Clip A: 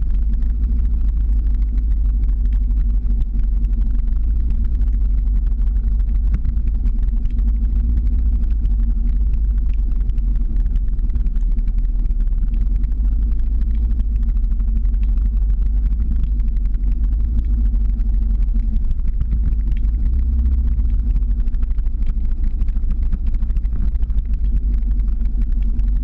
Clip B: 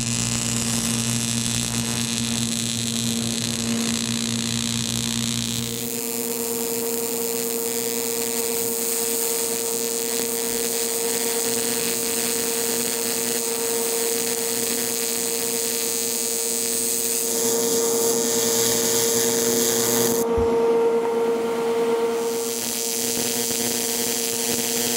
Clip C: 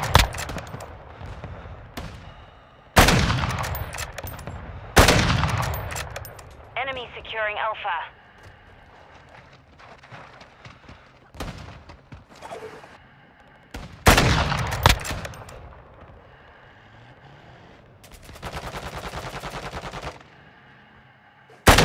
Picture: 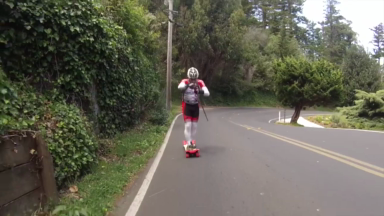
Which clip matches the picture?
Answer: A